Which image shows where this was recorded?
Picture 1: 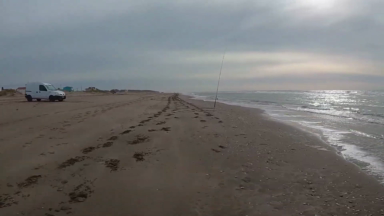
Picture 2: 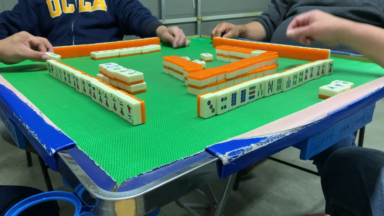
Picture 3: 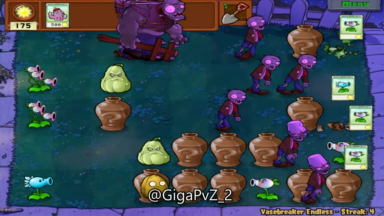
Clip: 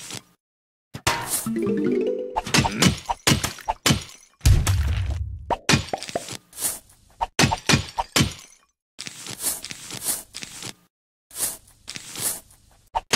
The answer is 3